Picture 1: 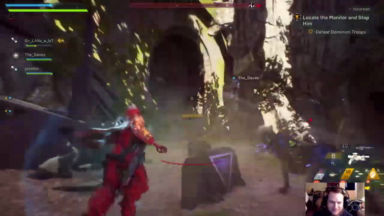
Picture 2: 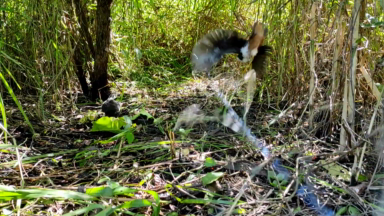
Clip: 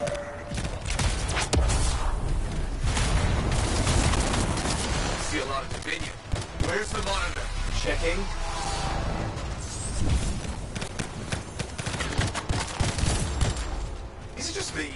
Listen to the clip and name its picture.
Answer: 1